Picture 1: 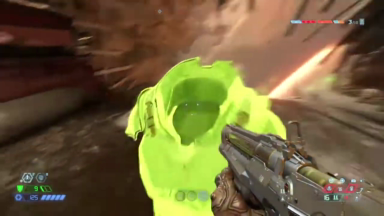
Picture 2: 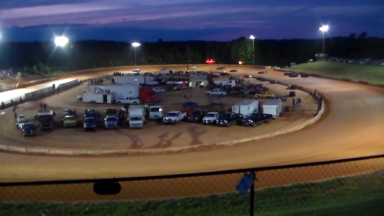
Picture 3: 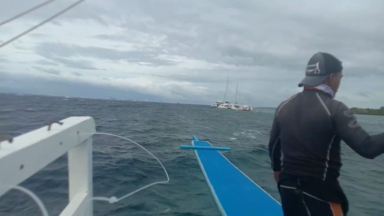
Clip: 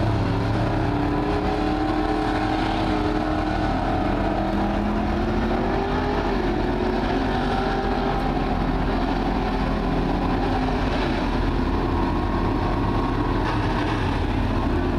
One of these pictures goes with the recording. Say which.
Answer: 2